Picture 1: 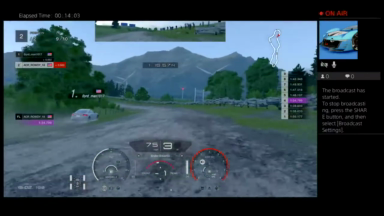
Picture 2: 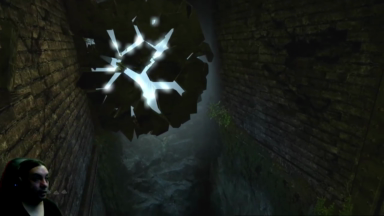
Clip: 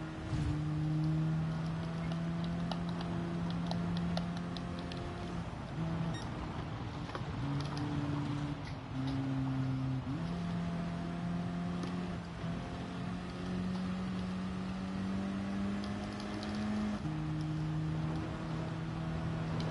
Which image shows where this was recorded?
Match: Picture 1